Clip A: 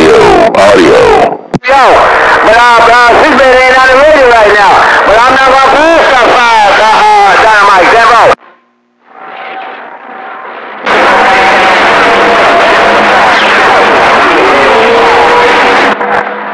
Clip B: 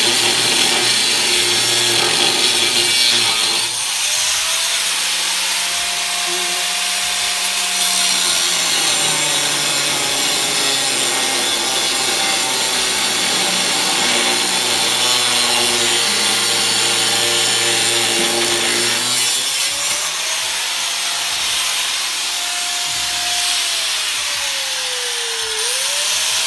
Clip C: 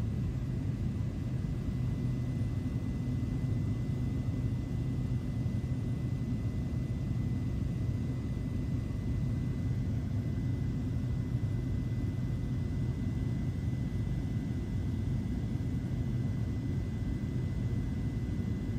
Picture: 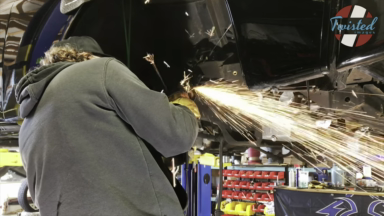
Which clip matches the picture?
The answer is B